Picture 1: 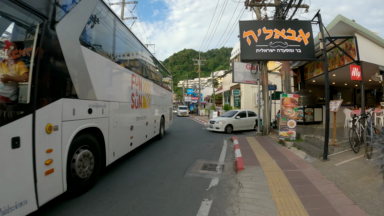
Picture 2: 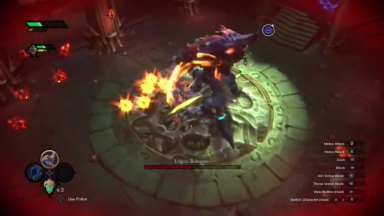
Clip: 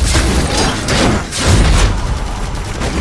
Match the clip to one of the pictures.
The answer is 2